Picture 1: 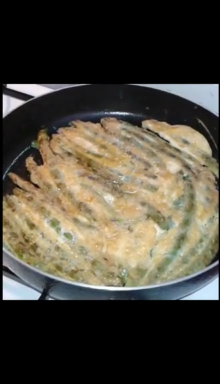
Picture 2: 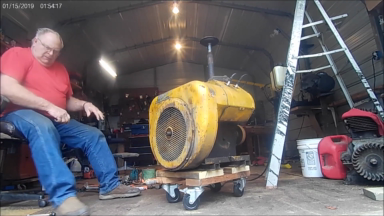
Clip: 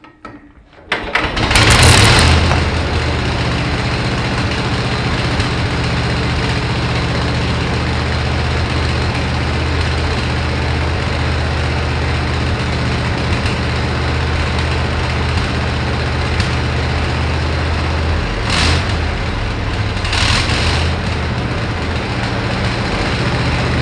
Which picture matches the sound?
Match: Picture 2